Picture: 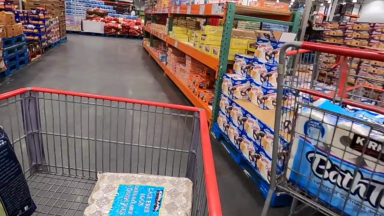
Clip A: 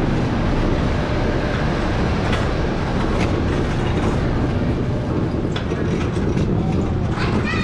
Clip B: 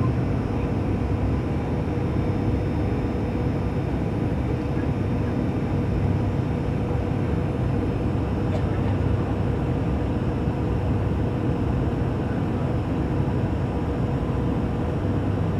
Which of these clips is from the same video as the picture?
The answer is A